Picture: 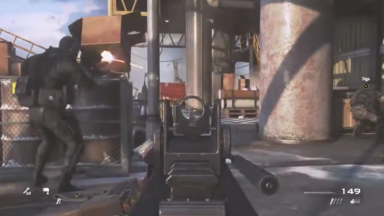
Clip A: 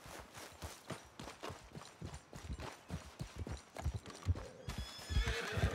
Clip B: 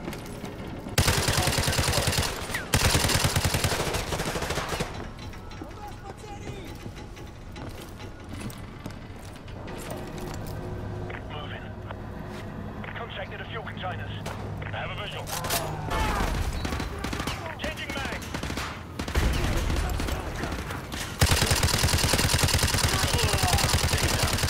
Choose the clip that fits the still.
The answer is B